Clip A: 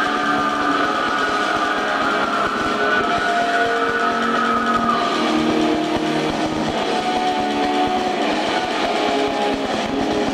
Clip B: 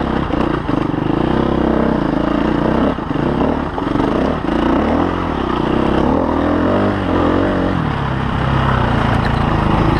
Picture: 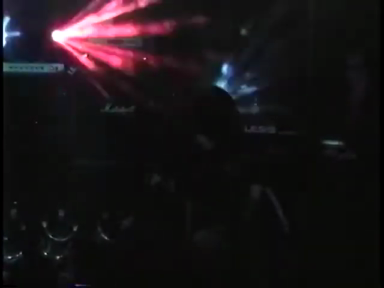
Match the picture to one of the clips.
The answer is A